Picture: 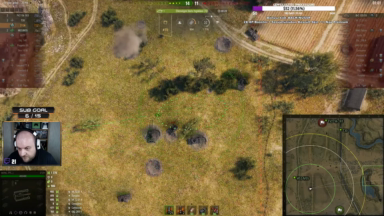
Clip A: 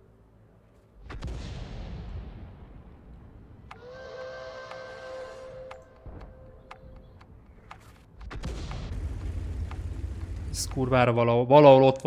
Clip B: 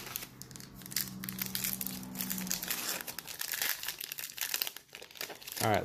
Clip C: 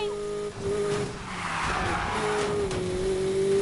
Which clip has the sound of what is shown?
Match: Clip A